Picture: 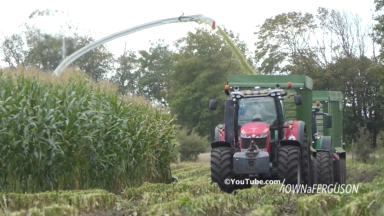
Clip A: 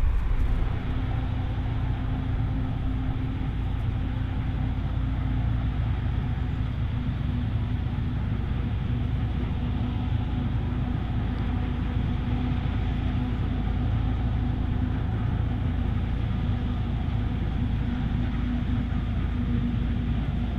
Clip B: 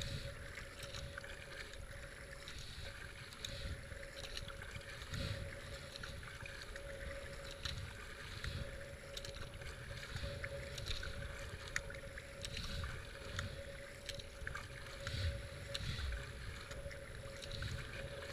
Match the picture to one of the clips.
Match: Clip A